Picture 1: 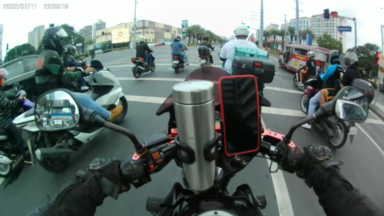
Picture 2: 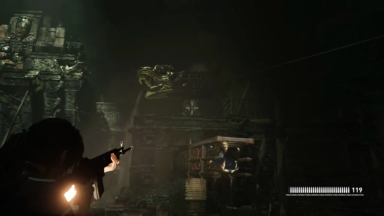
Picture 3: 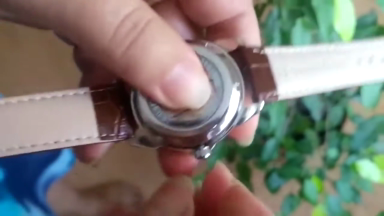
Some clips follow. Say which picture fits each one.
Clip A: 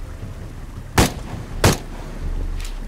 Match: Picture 2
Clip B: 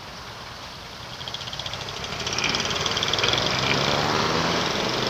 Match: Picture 1